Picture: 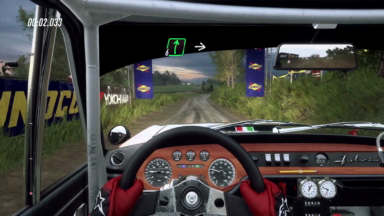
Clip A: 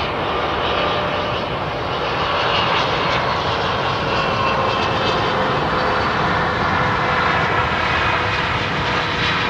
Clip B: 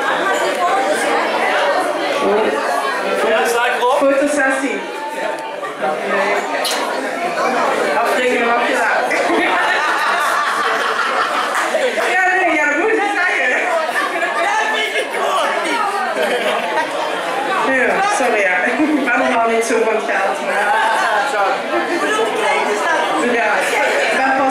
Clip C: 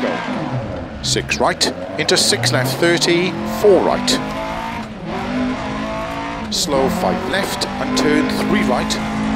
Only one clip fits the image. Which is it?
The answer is C